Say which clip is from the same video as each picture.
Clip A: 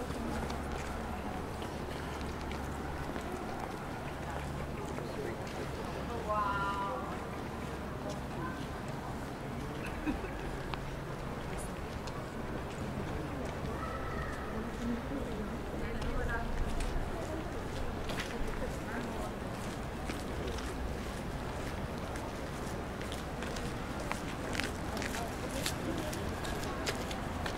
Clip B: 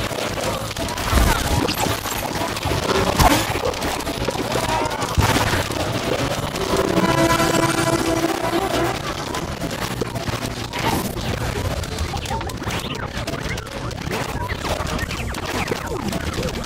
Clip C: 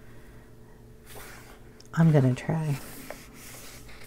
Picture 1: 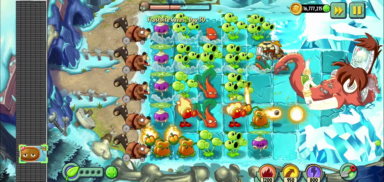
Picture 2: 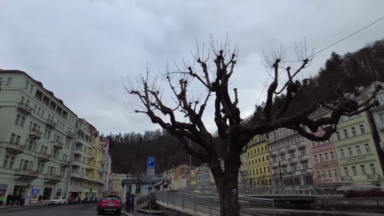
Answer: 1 B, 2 A